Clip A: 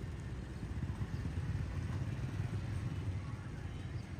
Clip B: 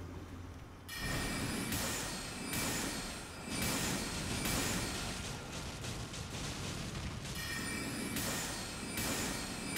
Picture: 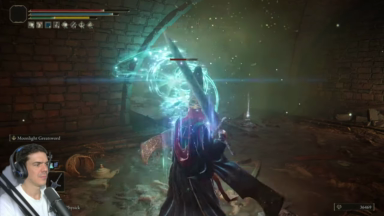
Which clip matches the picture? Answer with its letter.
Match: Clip B